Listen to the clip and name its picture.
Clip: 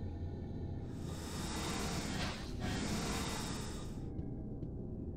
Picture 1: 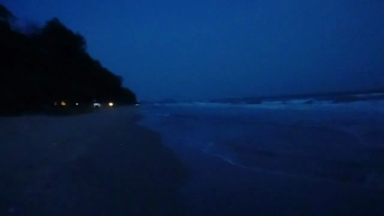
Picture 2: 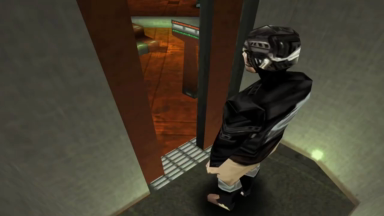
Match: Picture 2